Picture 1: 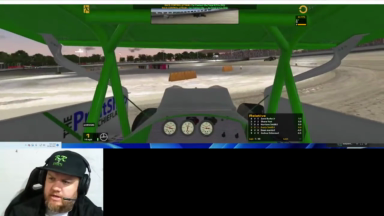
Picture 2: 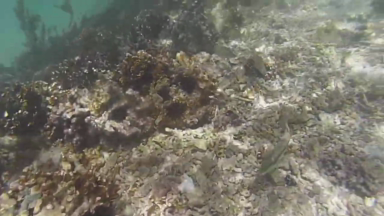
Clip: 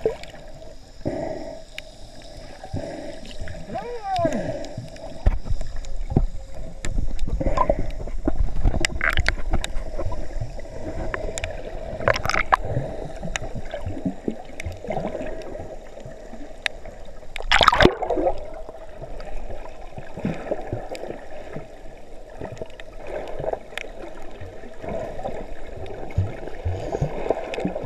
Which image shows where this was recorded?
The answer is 2